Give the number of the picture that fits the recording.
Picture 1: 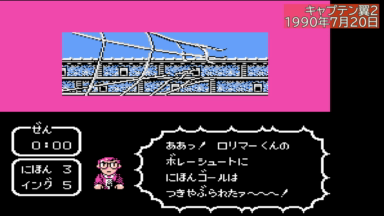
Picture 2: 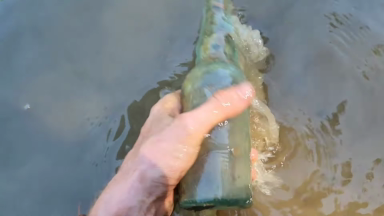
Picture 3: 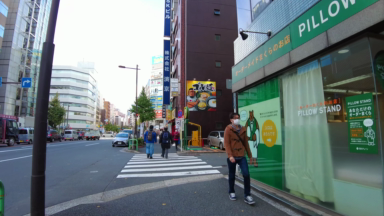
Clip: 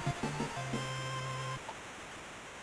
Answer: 1